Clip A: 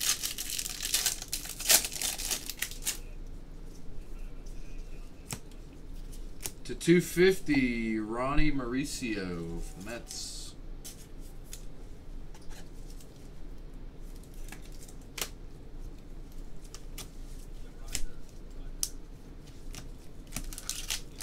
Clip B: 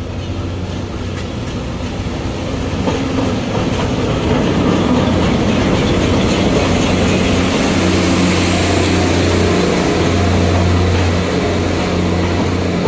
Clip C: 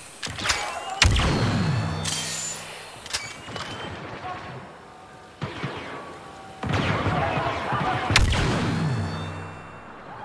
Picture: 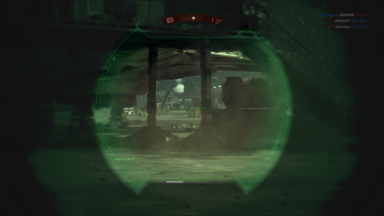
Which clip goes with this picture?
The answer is C